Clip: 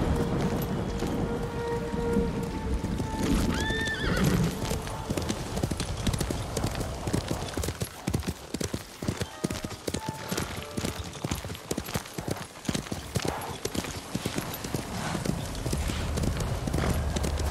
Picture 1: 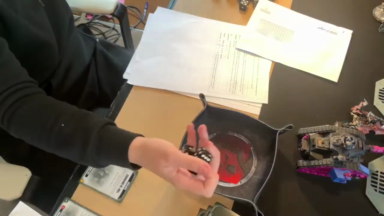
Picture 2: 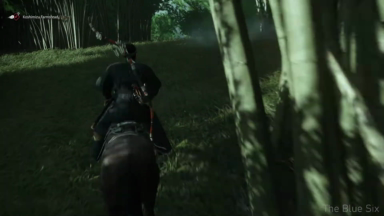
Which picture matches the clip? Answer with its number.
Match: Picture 2